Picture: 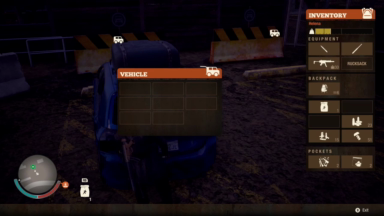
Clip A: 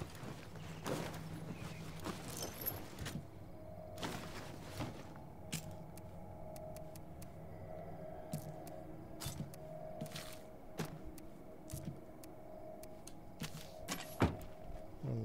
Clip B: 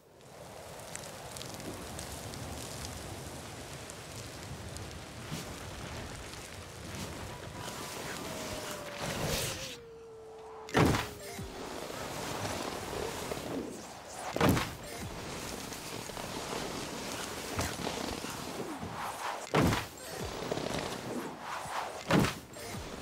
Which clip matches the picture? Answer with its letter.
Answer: A